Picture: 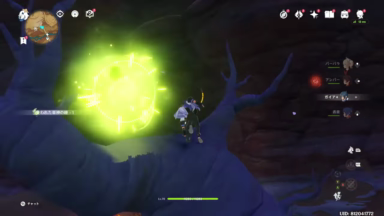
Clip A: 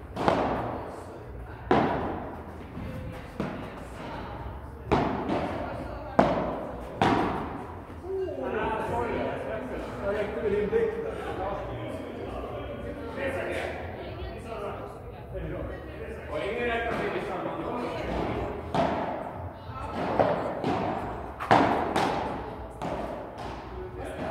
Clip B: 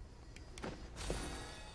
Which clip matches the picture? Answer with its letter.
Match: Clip B